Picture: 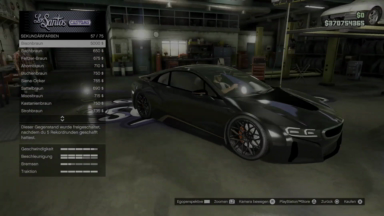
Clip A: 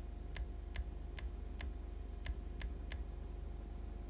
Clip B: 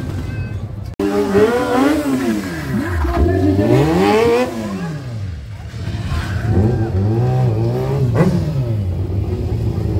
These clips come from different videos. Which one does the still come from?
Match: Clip A